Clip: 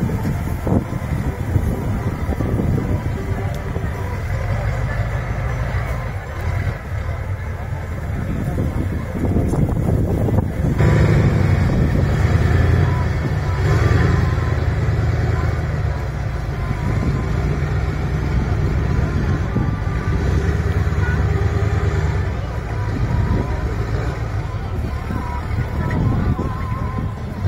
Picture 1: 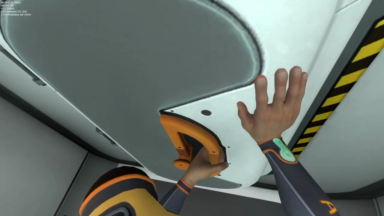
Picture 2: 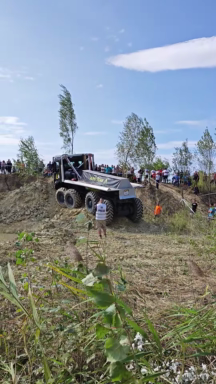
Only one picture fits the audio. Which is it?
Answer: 2